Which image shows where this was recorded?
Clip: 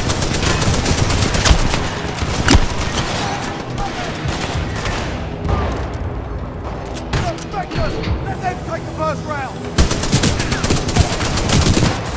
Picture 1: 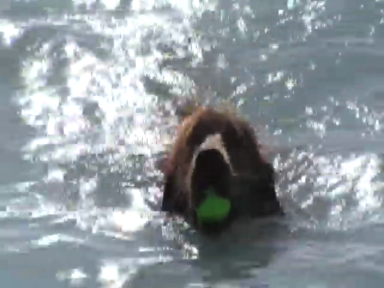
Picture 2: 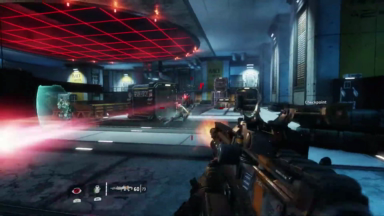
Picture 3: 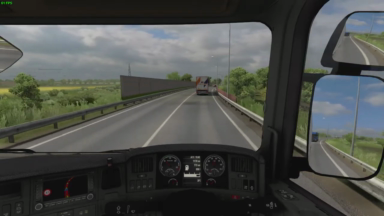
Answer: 2